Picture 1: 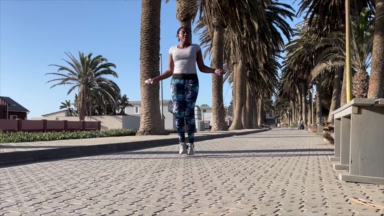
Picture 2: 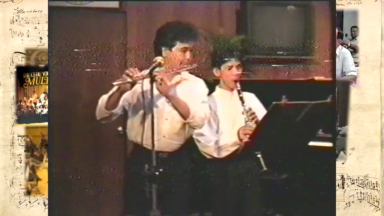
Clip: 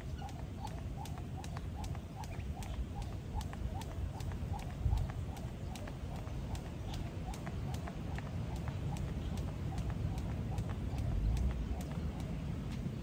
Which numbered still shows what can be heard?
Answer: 1